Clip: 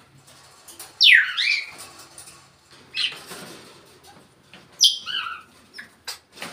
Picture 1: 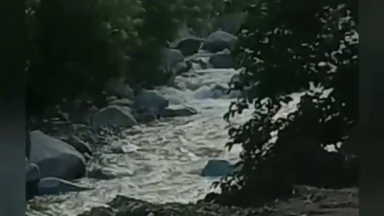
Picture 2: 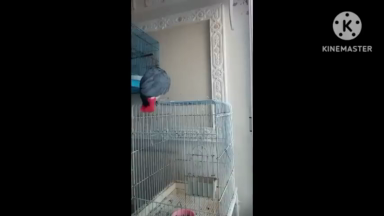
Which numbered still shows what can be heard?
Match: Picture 2